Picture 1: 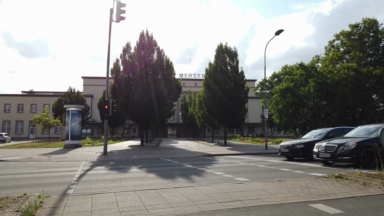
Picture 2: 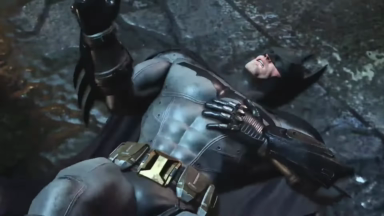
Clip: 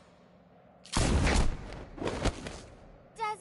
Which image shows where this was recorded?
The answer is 2